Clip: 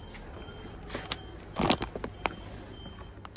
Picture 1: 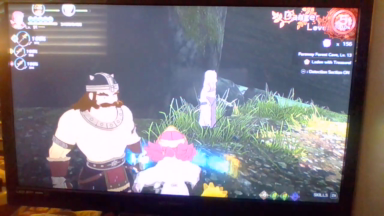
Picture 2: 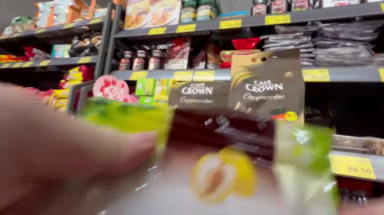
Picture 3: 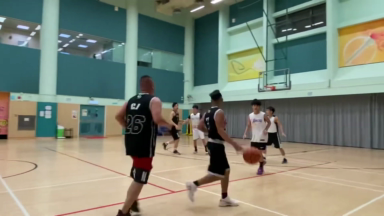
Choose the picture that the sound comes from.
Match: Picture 2